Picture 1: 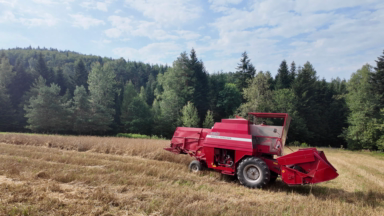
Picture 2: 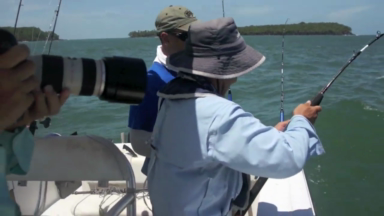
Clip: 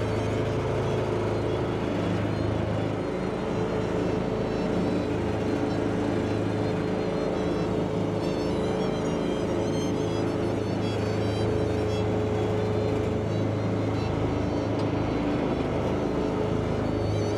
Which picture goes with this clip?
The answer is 1